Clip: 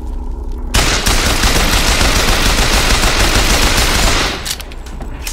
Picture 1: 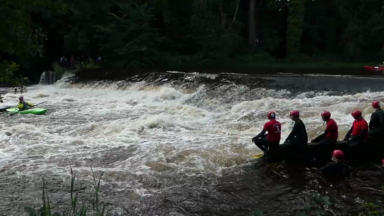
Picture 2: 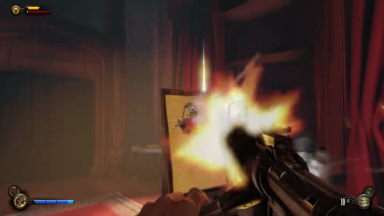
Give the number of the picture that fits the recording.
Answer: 2